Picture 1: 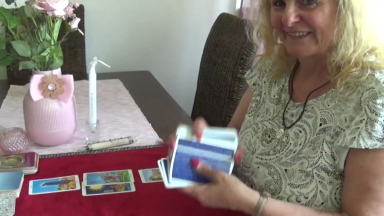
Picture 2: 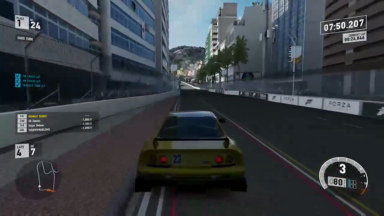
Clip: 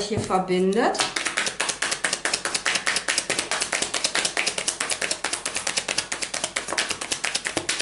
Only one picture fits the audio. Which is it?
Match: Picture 1